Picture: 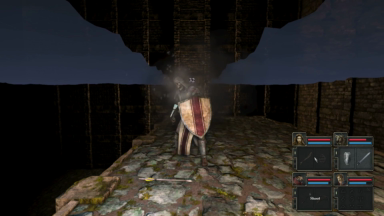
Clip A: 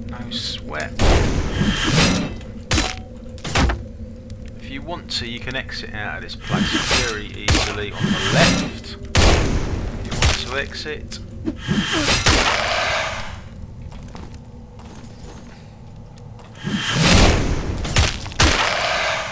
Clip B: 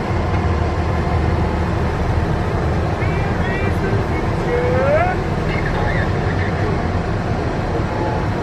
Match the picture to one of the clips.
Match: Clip A